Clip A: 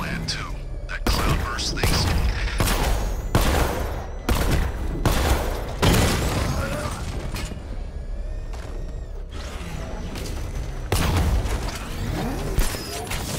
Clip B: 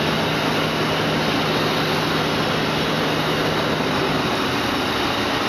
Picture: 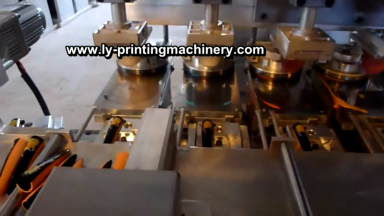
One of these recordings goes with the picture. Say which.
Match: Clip B